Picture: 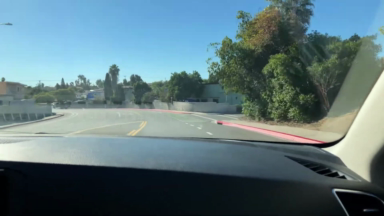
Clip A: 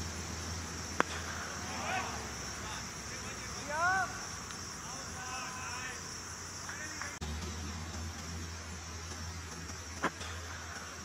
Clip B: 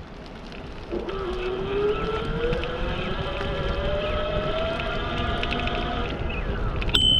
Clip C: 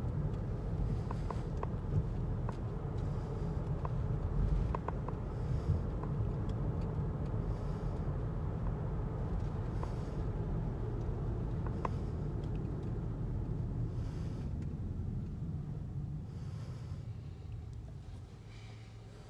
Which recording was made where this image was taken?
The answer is C